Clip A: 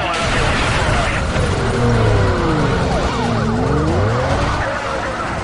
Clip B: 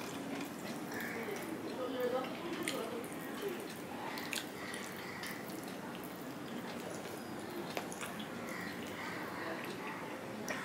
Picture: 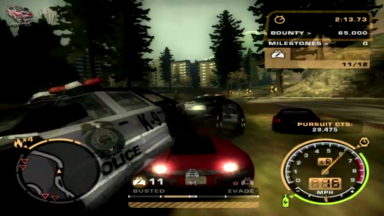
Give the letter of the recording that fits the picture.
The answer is A